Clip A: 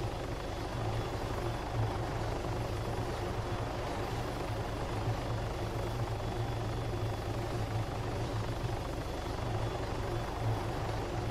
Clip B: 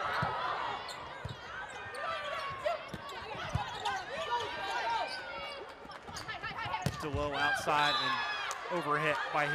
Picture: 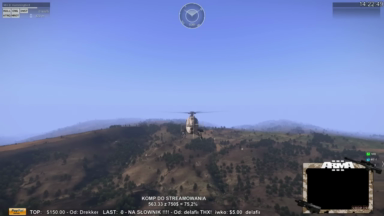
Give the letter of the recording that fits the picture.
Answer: A